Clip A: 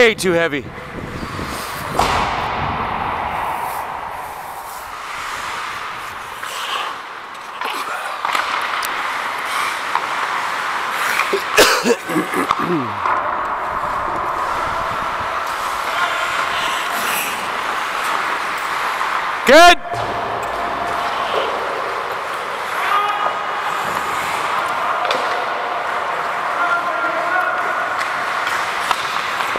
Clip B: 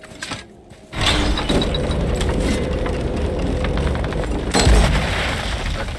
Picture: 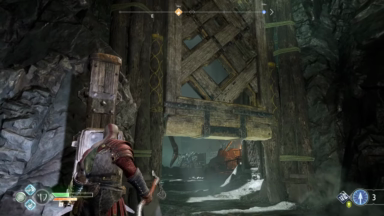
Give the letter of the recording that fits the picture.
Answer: B